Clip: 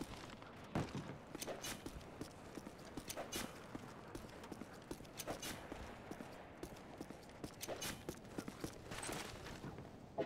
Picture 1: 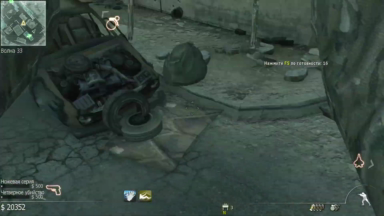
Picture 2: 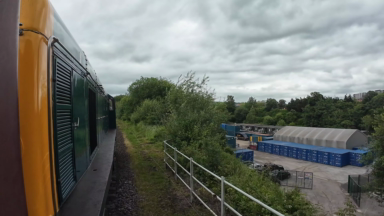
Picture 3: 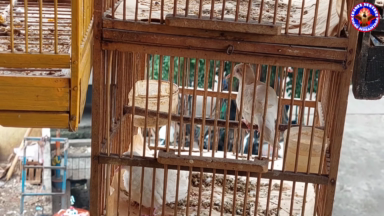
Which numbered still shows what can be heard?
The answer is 1